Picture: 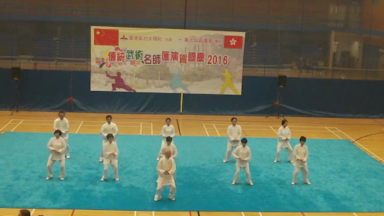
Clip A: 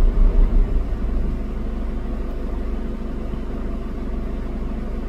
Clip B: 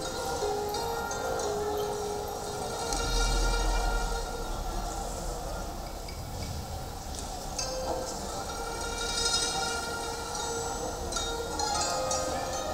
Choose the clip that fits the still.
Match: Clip B